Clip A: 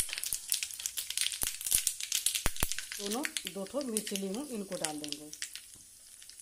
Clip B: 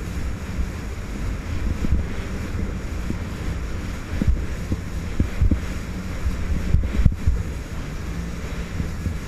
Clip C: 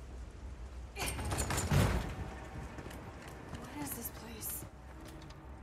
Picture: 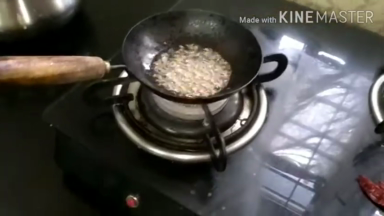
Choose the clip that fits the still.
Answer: A